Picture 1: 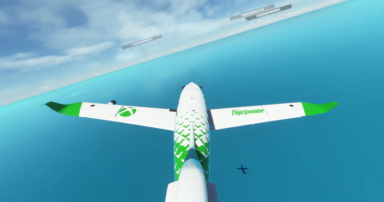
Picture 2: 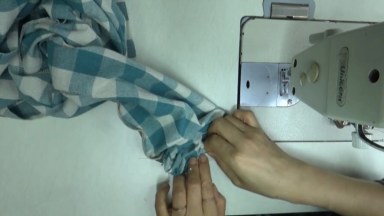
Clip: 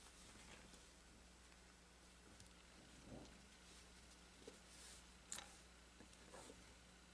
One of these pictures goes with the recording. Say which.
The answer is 2